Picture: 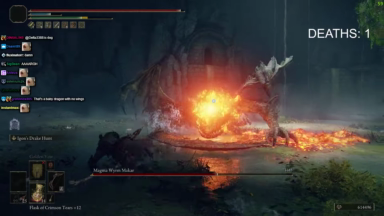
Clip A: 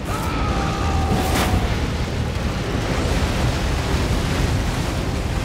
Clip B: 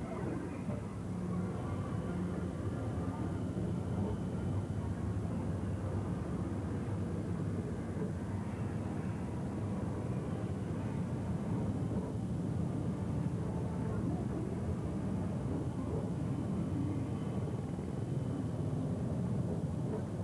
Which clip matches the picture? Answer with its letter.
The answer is A